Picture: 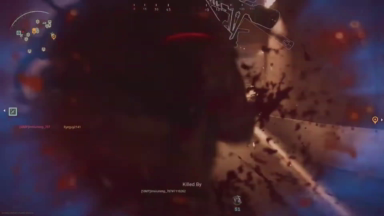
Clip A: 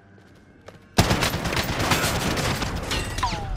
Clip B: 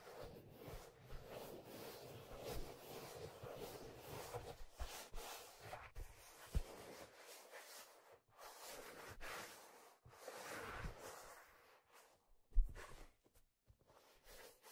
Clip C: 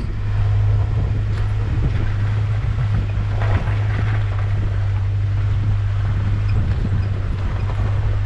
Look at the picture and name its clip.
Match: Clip A